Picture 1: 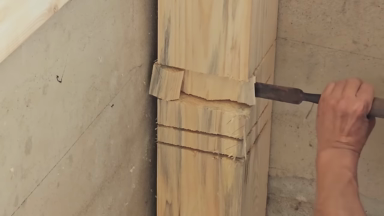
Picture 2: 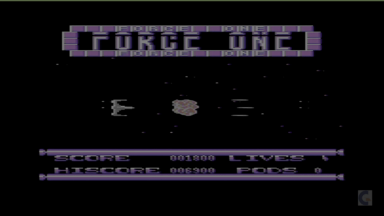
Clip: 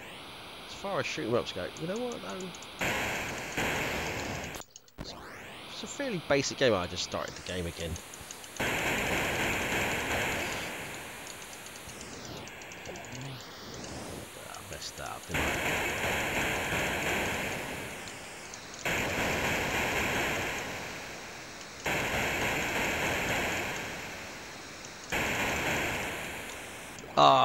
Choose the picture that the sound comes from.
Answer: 2